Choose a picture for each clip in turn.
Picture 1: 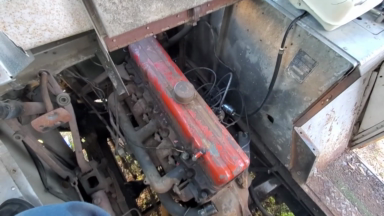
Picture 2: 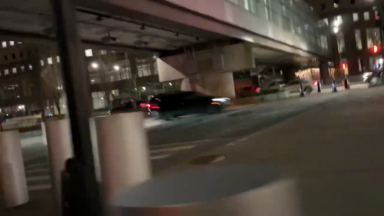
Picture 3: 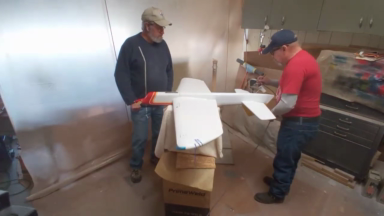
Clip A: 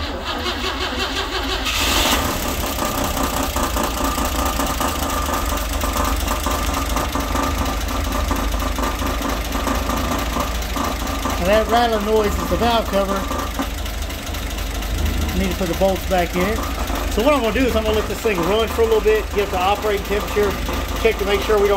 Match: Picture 1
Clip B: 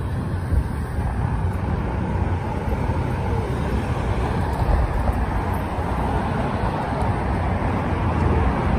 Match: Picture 2